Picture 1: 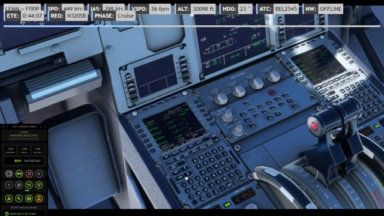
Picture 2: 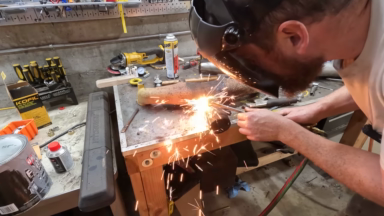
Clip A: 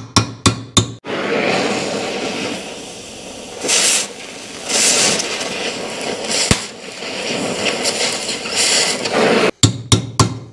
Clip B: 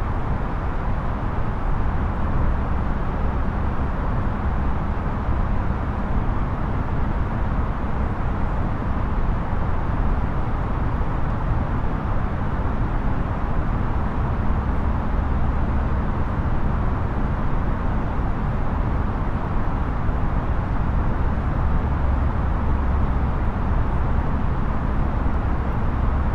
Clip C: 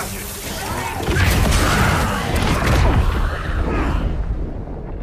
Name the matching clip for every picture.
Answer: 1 B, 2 A